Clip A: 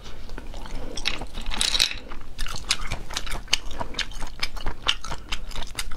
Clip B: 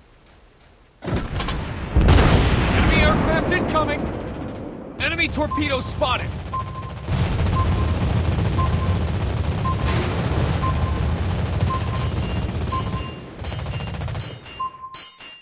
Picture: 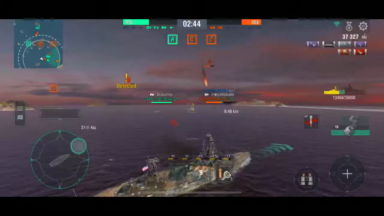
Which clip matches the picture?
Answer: B